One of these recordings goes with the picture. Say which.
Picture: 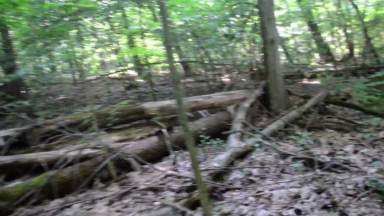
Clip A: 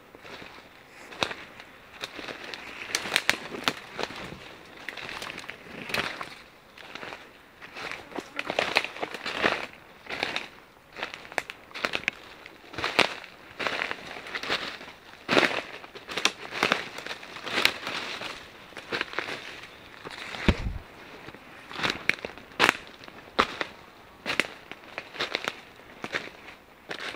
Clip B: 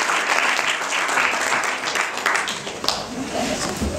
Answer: A